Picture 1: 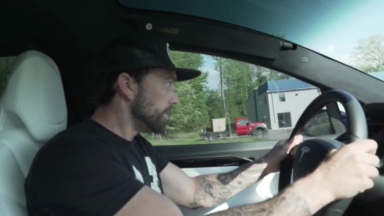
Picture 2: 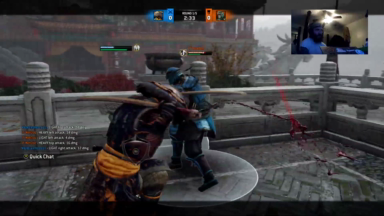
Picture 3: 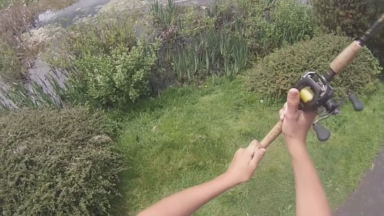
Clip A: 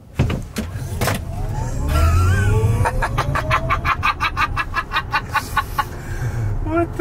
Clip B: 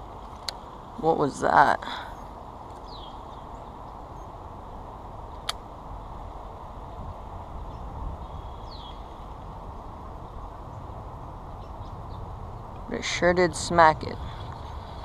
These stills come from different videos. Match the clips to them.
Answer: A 1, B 3